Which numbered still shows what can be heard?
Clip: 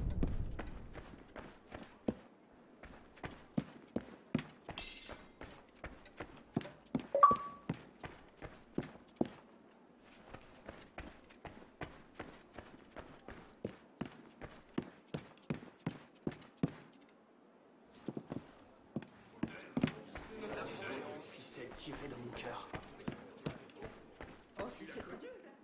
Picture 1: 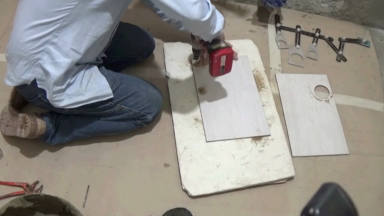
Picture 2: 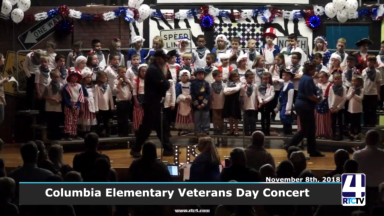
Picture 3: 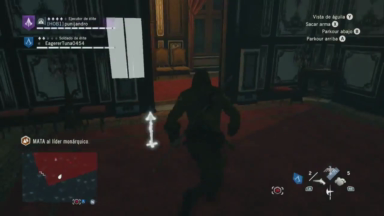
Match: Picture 3